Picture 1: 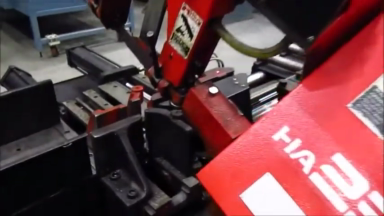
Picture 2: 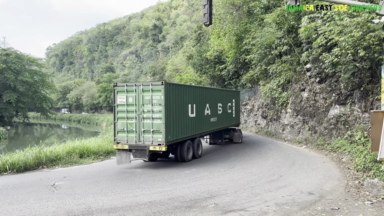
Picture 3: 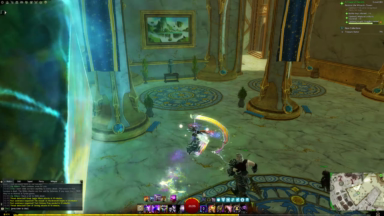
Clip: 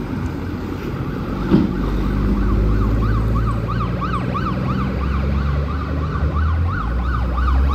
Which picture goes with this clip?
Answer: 2